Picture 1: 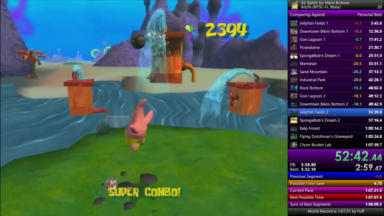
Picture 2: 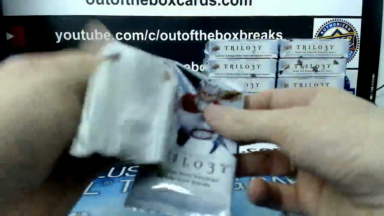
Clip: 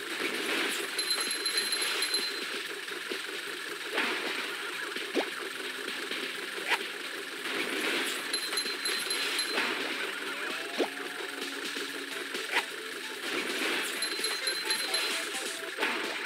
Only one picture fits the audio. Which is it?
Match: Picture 1